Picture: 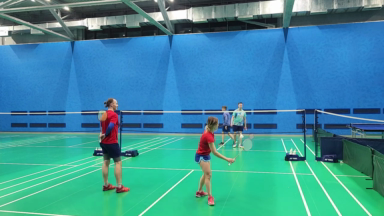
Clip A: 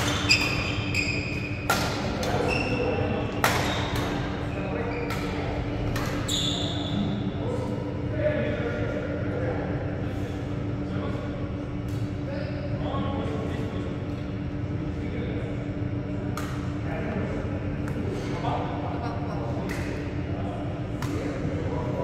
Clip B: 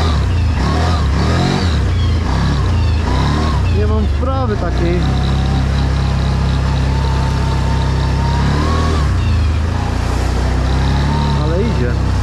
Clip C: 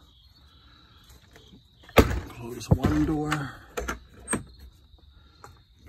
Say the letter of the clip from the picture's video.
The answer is A